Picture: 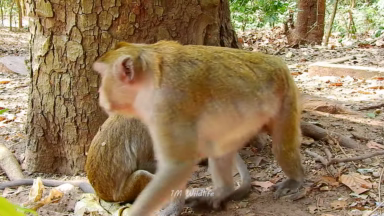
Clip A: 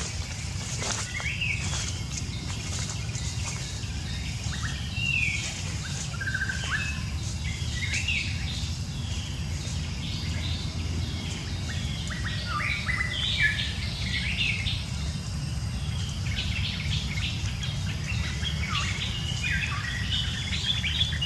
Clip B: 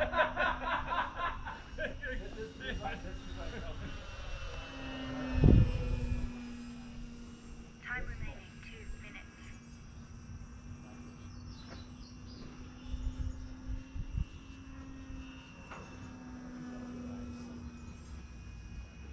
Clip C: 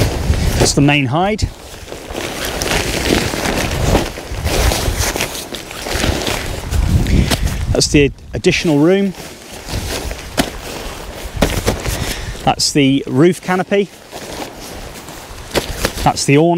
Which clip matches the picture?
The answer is A